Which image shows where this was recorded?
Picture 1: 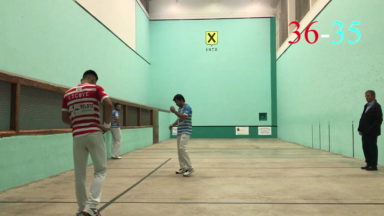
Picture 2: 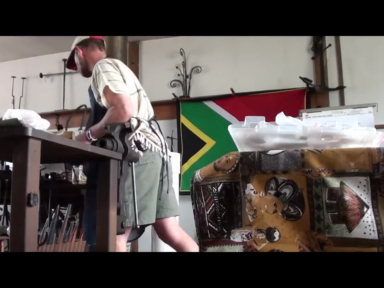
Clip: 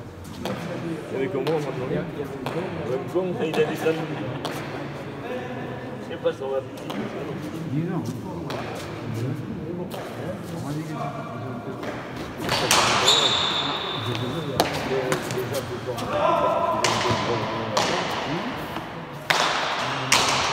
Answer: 1